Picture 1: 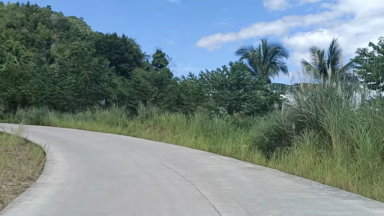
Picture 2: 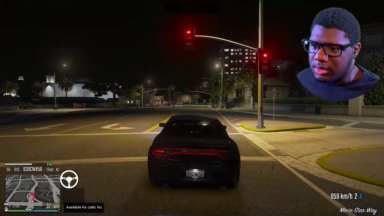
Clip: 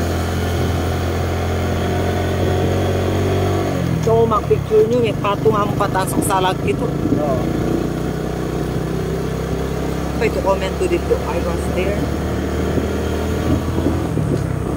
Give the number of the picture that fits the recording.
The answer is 1